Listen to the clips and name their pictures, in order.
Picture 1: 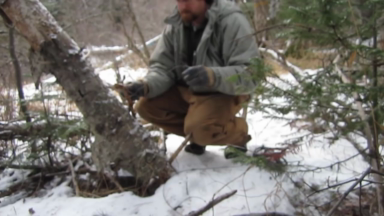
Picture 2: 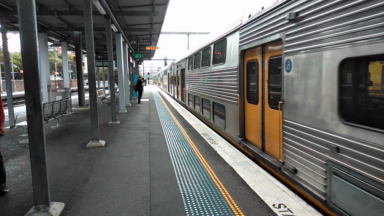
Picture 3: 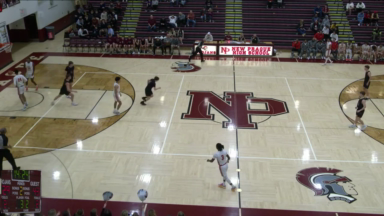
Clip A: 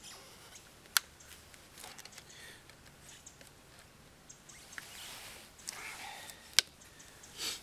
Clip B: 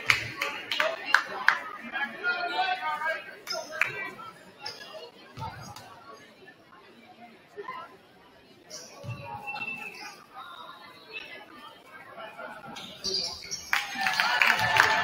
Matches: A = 1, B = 3